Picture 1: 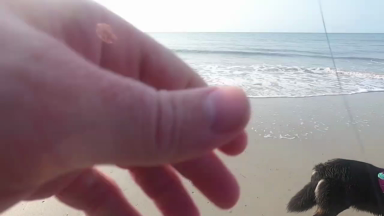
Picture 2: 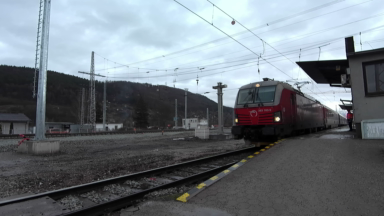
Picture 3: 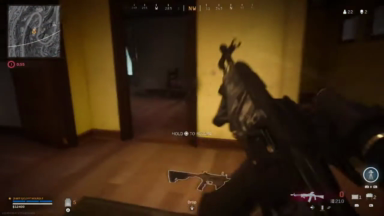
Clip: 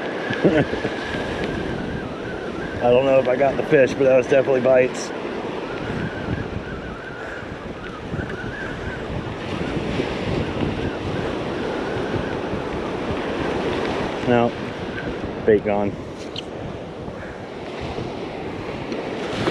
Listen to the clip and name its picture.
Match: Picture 1